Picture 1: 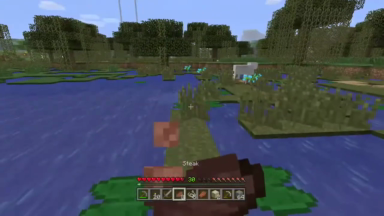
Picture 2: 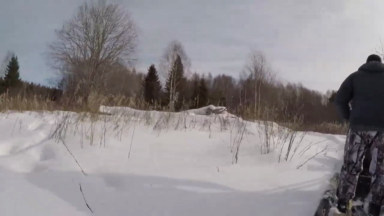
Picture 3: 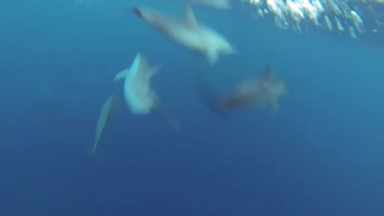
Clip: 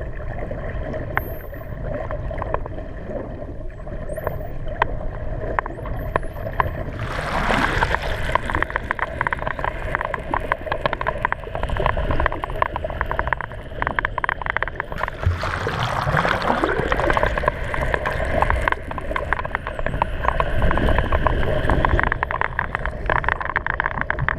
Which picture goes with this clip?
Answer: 3